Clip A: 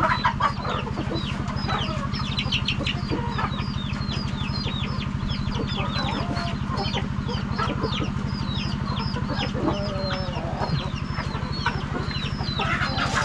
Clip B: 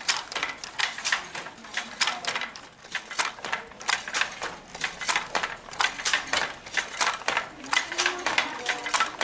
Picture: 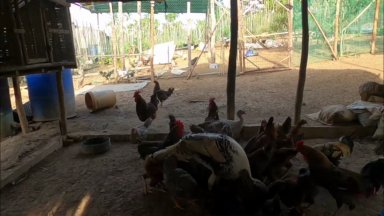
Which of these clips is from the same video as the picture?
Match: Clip A